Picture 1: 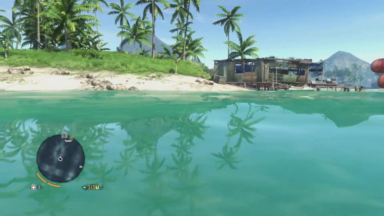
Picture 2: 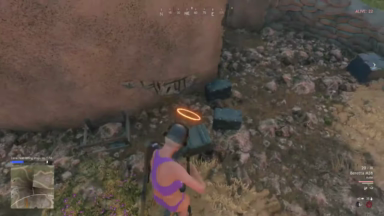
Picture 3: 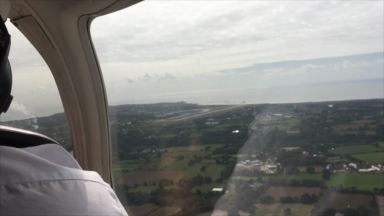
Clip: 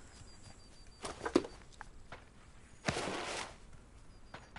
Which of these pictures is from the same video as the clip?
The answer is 2